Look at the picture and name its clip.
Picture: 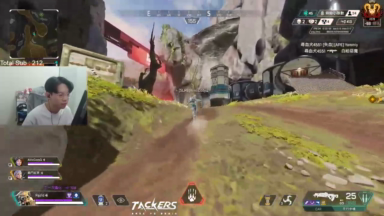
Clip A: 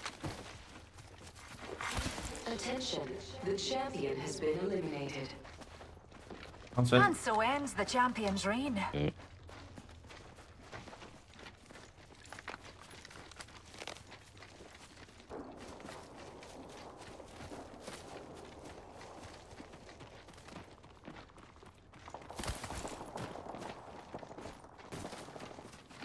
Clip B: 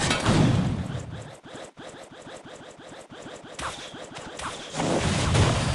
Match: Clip A